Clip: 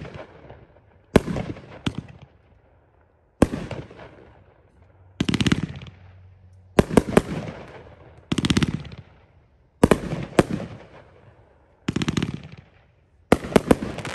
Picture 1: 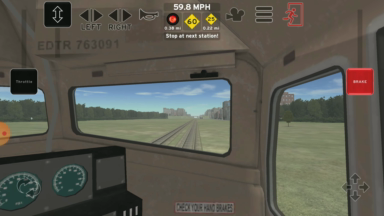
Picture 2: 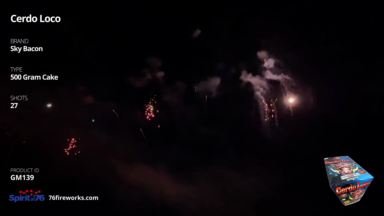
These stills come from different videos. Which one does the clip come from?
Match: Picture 2